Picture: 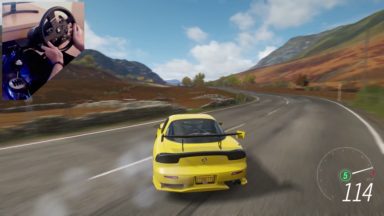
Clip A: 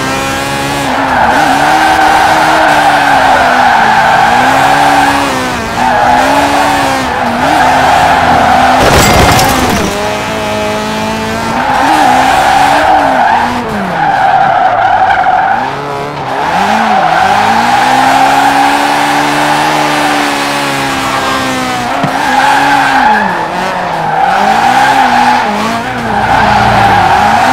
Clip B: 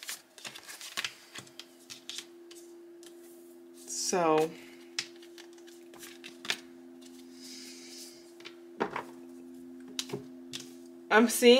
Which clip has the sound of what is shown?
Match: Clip A